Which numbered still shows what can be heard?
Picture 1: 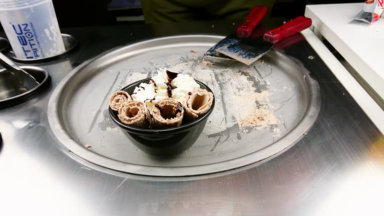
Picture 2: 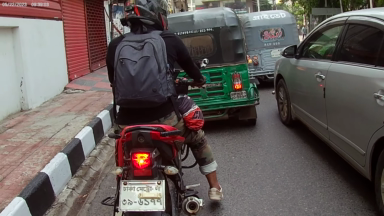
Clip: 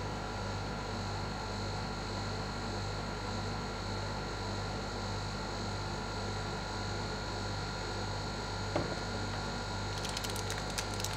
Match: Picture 1